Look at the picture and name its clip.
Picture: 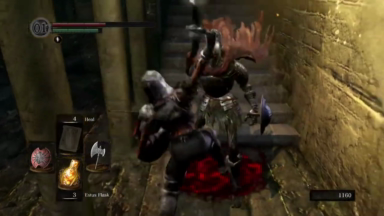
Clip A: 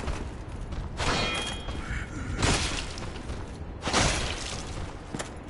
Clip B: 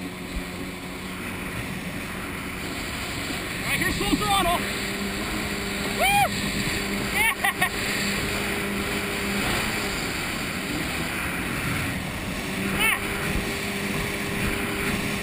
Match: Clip A